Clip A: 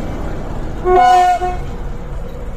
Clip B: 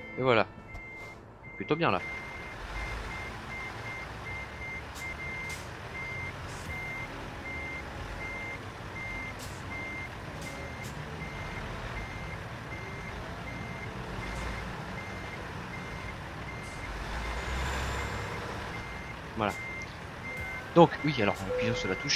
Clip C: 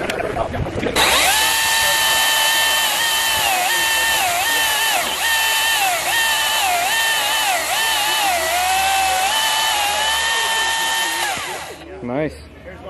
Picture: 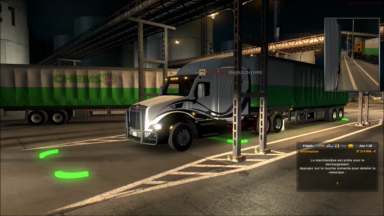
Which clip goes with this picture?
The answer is B